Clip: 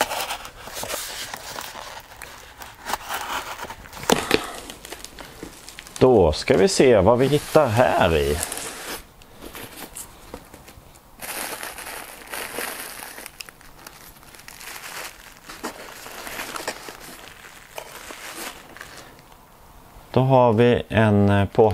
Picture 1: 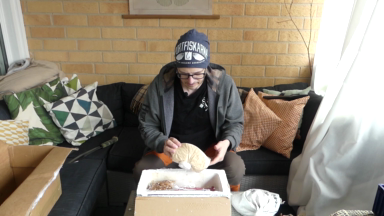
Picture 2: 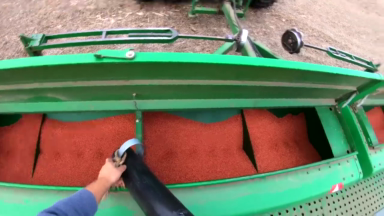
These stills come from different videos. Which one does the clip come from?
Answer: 1